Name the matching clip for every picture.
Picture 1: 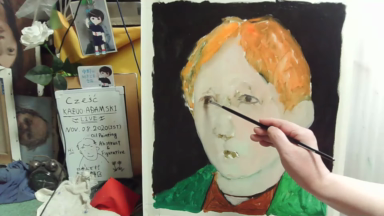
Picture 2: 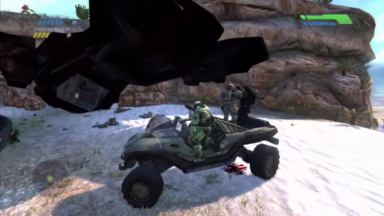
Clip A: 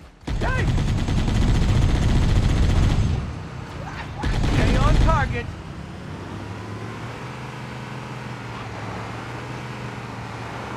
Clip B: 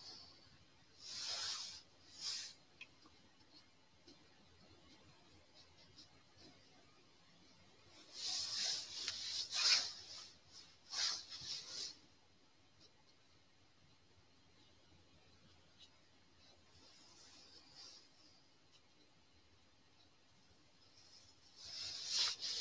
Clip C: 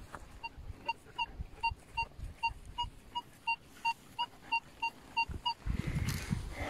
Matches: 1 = B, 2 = A